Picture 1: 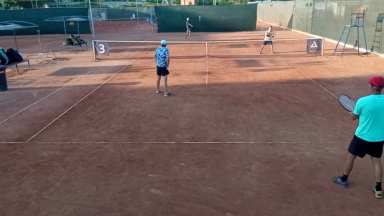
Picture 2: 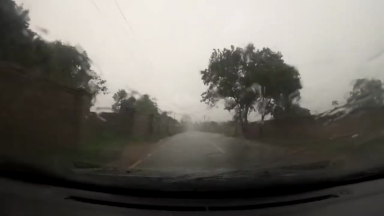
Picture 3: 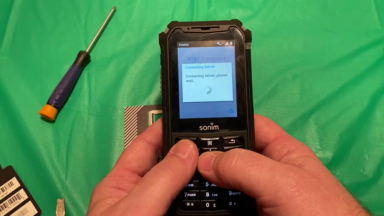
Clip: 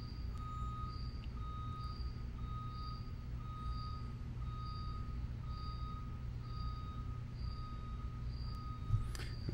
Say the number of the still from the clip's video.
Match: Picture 3